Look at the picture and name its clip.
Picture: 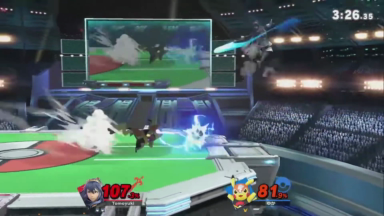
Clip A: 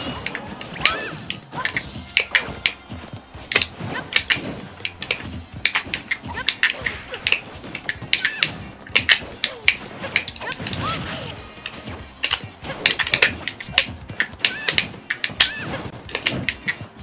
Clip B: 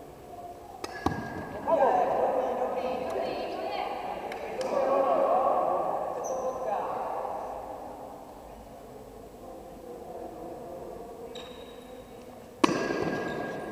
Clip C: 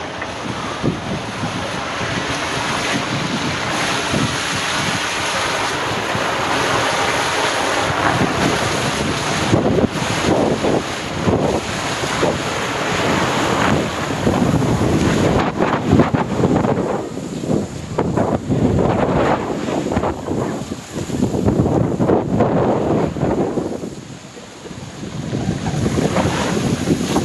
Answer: A